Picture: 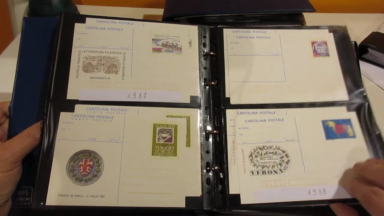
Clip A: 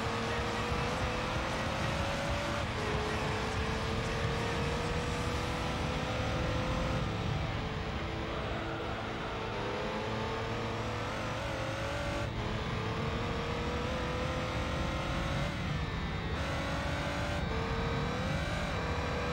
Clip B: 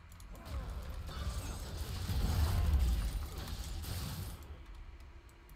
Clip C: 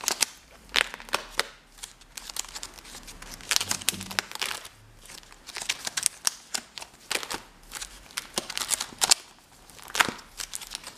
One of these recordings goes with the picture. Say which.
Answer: C